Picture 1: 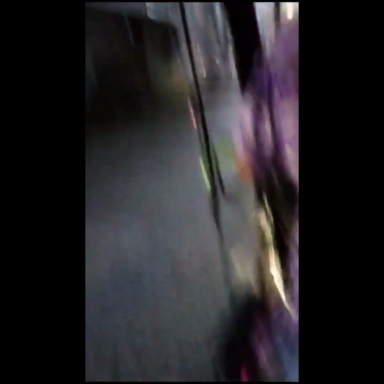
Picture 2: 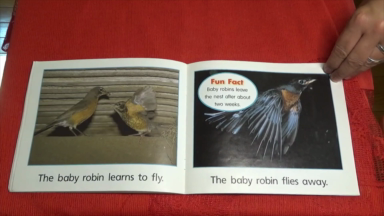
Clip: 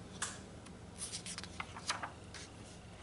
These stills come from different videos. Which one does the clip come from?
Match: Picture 2